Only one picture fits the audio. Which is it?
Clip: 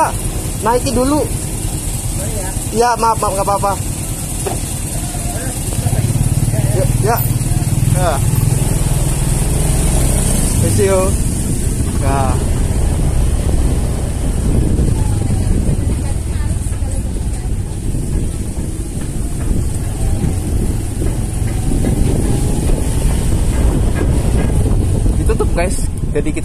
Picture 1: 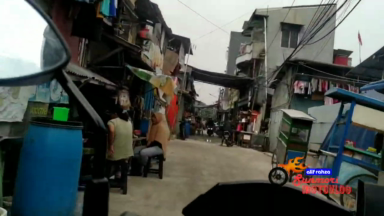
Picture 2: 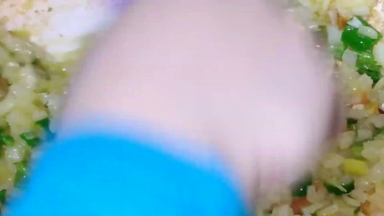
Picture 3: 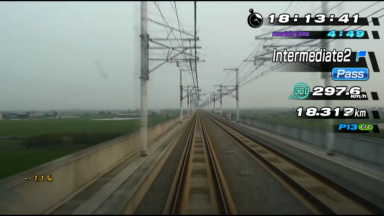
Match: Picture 1